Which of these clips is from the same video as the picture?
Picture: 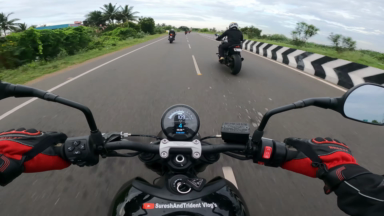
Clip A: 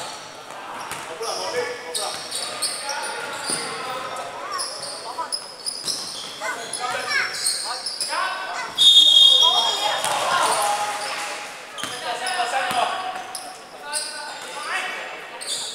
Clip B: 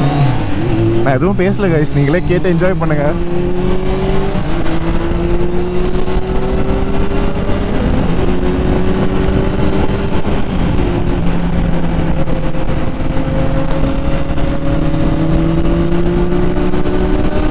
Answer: B